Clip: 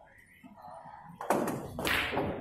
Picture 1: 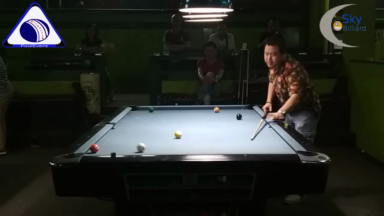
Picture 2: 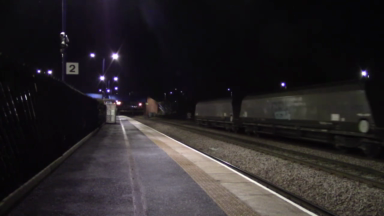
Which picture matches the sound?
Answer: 1